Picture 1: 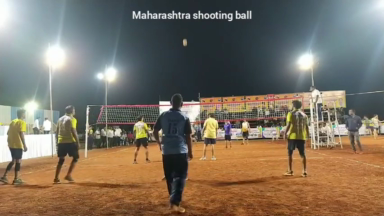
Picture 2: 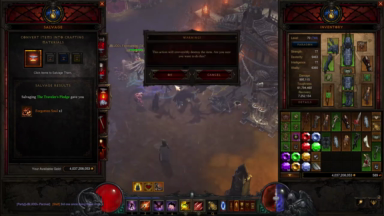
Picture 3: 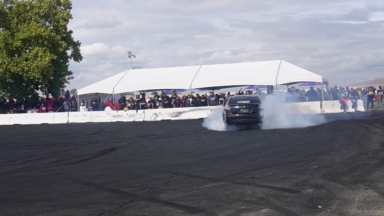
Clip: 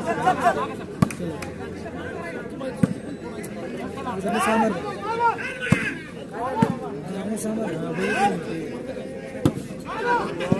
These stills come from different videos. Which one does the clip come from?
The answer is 1